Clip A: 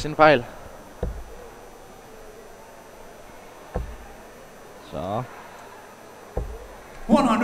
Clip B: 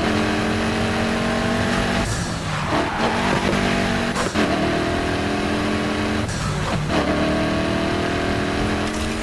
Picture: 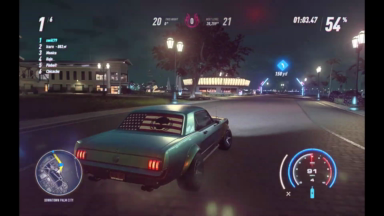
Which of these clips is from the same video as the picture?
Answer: B